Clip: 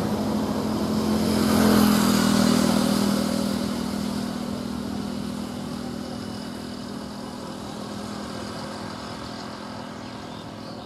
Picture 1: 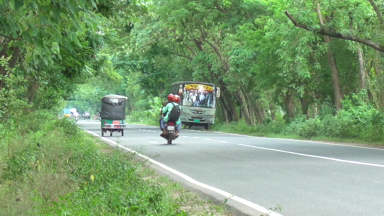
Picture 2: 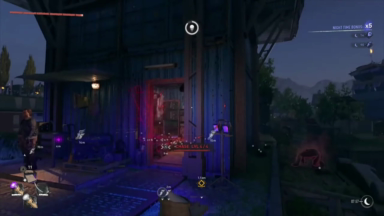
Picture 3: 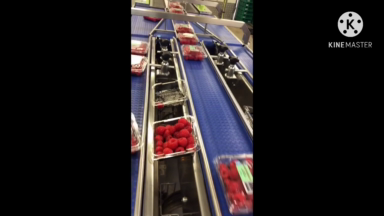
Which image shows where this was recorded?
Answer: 1